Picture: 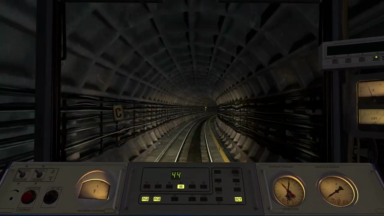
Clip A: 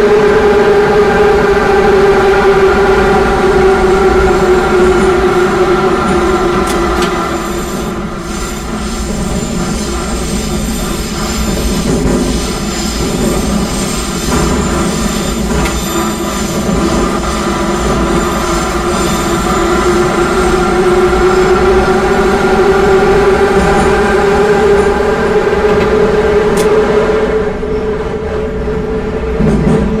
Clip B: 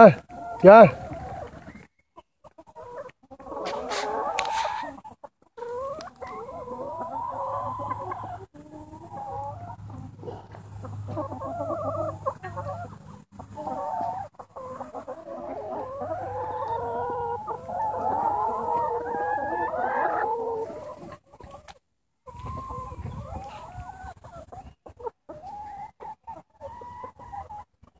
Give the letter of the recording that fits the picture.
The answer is A